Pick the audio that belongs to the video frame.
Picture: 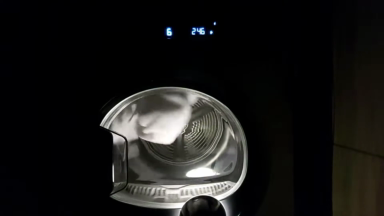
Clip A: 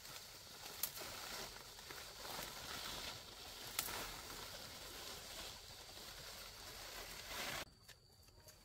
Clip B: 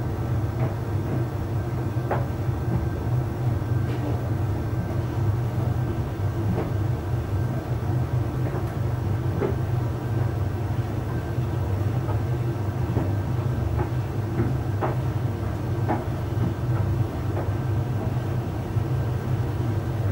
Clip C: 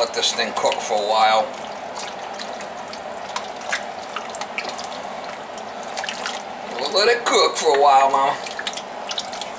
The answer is B